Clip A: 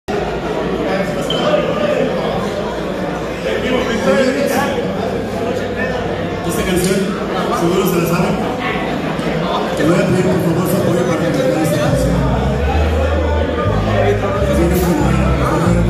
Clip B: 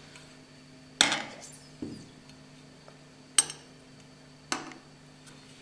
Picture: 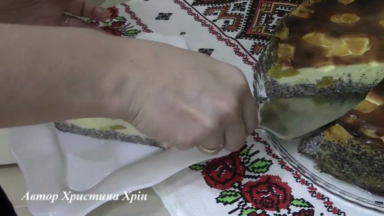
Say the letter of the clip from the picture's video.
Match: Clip B